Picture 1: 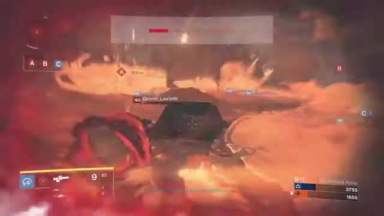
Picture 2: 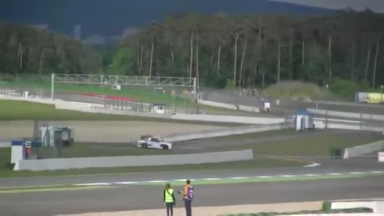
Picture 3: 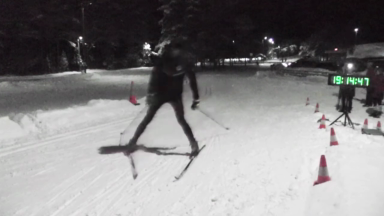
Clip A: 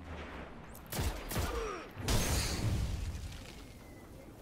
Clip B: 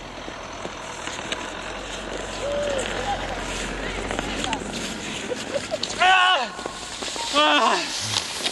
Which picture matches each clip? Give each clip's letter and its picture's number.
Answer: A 1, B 3